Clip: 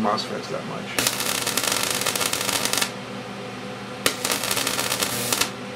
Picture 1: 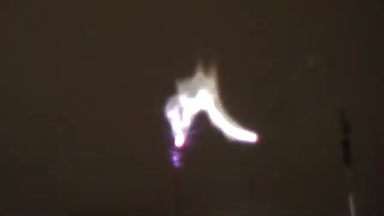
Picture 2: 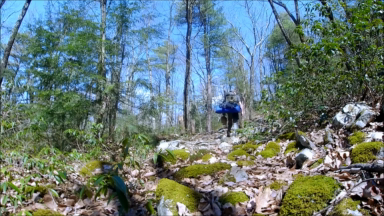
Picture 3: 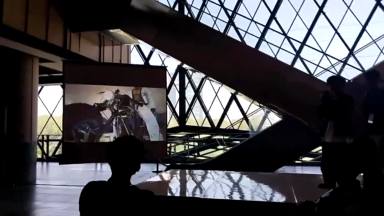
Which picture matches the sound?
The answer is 1